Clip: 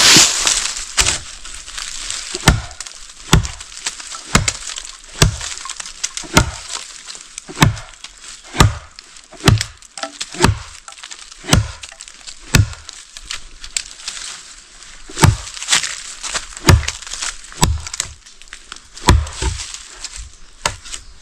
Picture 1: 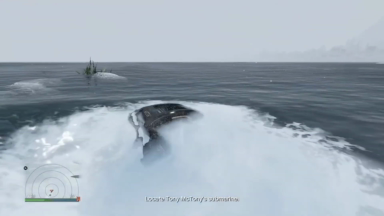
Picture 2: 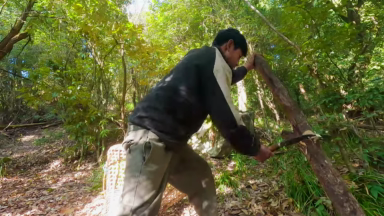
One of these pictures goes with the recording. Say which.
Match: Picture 2